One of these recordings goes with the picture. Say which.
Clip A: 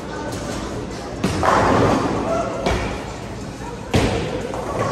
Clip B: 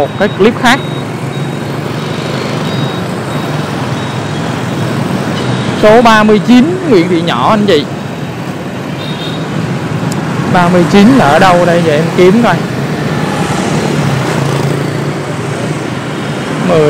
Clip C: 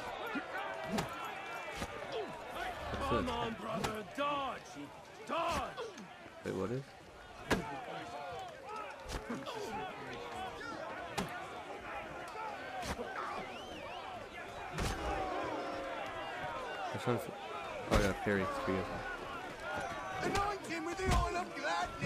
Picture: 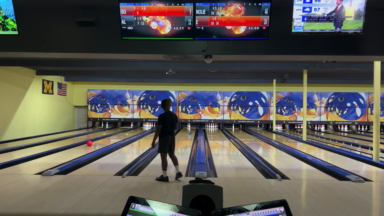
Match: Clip A